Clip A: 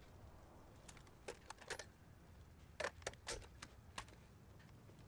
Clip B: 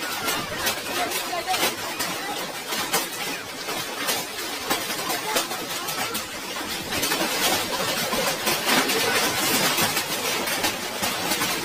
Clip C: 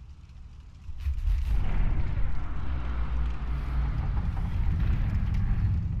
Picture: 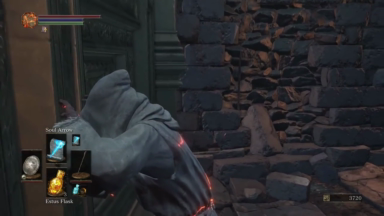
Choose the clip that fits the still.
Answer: C